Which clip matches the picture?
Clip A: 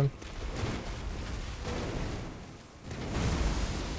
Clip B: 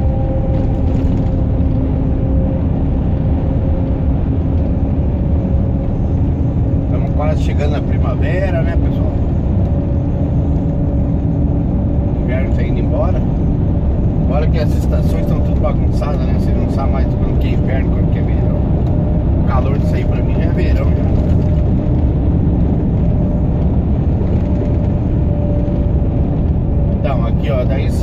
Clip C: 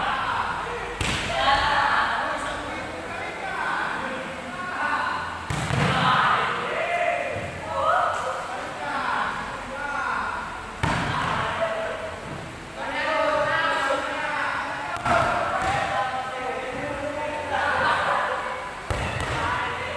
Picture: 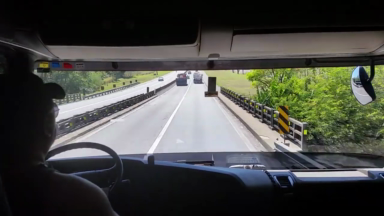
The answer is B